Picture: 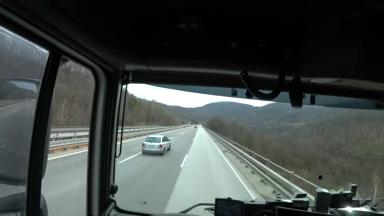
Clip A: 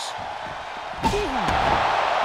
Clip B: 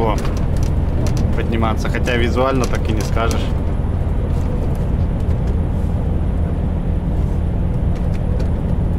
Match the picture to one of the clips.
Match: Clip B